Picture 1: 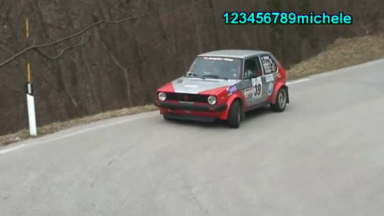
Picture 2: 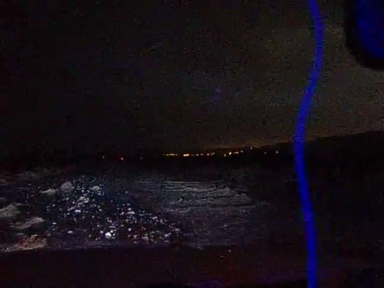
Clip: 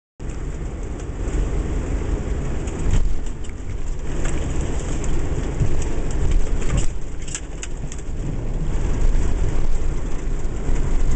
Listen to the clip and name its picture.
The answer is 2